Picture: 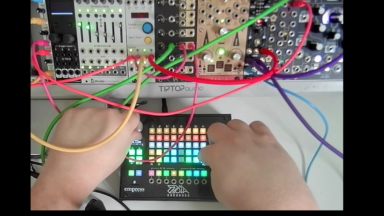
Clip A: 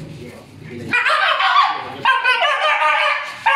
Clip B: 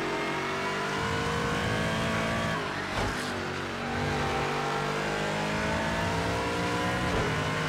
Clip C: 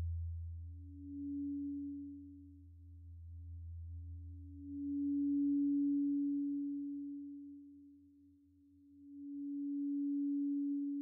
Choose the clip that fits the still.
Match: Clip C